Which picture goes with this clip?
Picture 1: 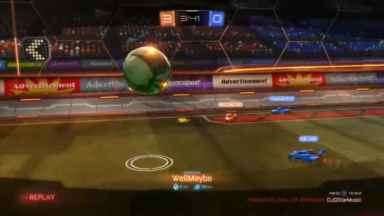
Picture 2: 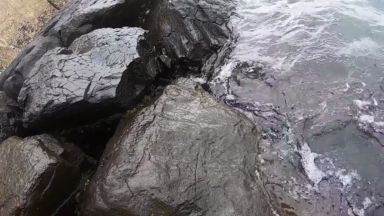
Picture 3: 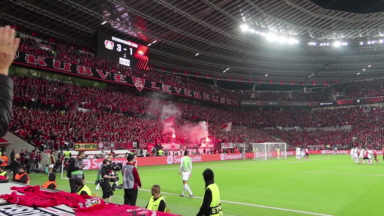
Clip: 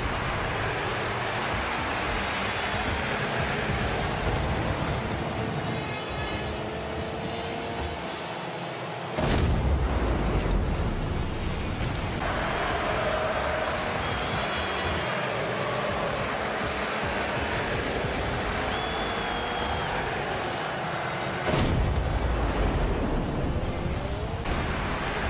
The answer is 1